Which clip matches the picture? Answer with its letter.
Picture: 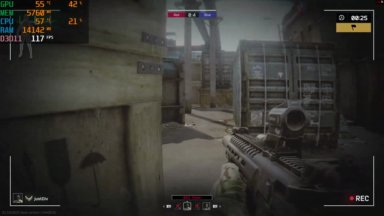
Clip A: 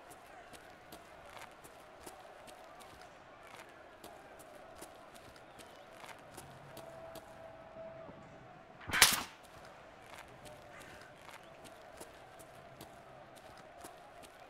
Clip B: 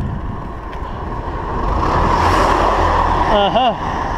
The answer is A